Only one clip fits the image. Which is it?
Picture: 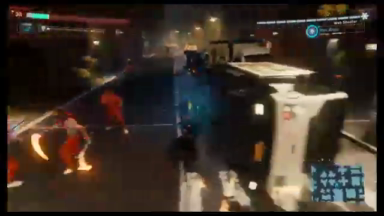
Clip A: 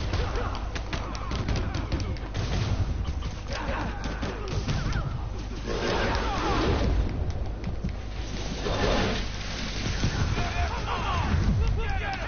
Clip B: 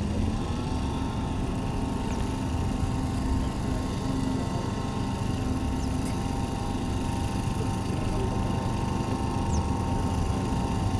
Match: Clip A